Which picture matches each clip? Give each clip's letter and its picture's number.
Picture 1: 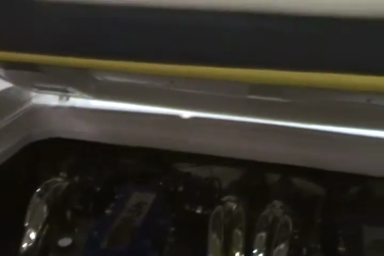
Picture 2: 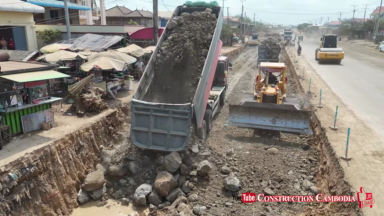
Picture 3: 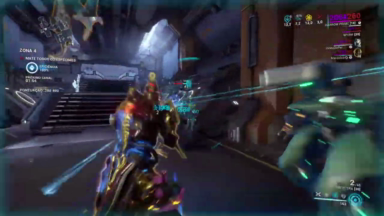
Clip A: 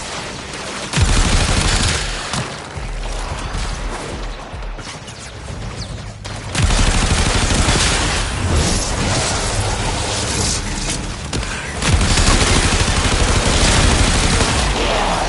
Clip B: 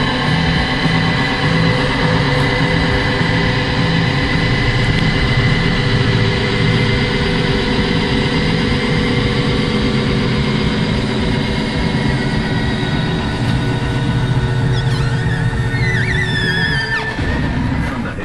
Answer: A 3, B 1